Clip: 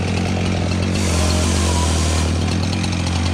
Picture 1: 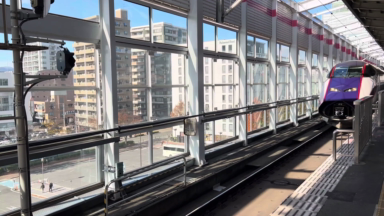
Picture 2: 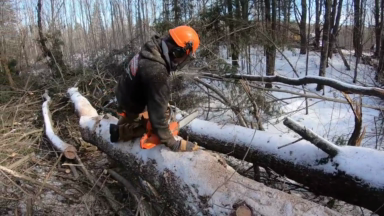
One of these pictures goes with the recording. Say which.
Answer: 2